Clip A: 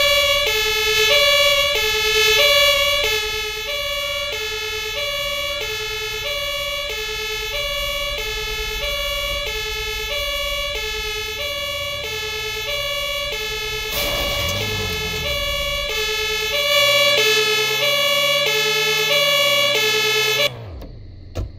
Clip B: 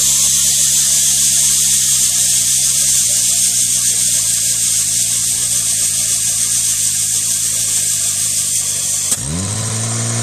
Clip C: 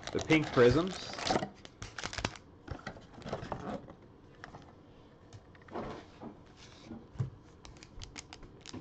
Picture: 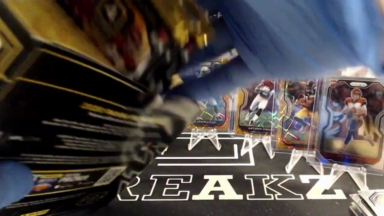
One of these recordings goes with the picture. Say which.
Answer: C